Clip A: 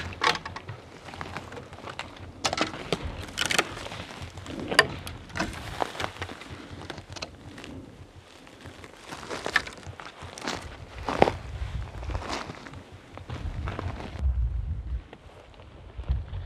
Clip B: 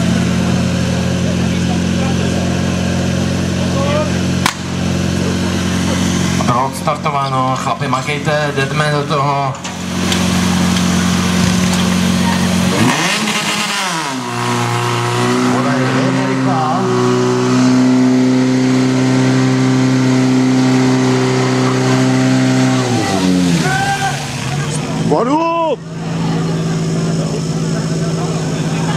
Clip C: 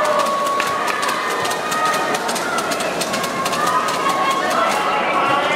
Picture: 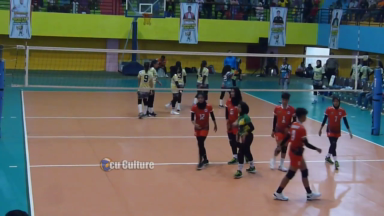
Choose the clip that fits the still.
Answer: C